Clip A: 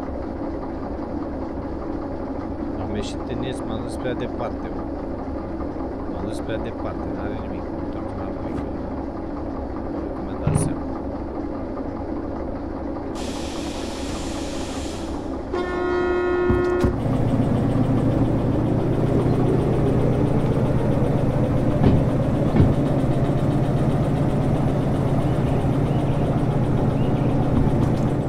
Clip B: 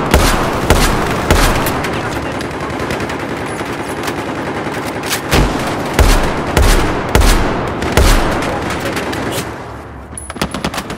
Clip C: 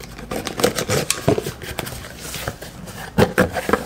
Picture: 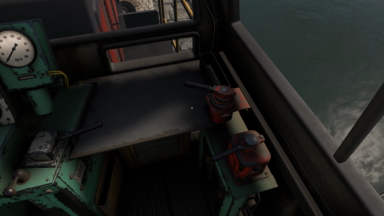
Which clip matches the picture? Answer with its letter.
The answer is A